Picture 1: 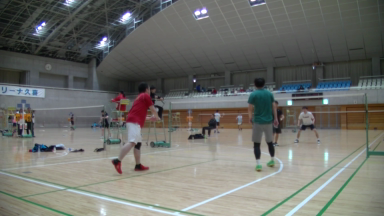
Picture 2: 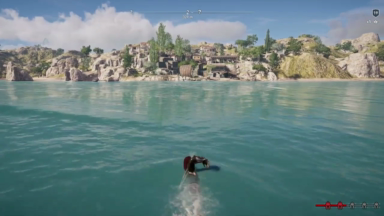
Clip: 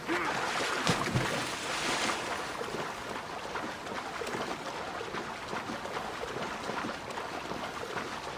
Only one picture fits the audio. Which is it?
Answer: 2